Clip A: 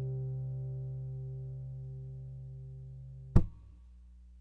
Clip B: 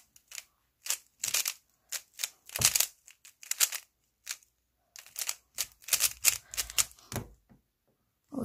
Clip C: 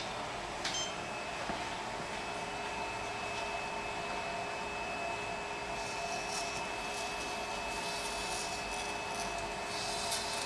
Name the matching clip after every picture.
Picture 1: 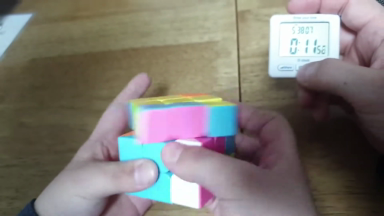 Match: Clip B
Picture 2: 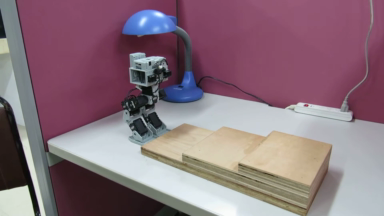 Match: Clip C